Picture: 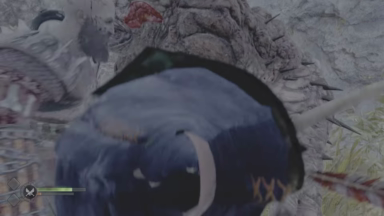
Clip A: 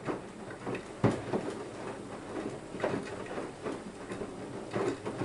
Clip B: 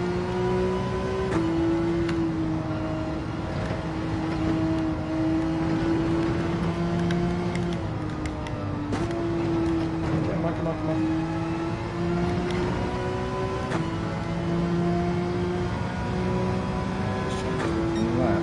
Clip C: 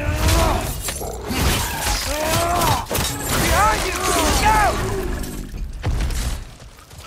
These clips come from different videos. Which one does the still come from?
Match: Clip C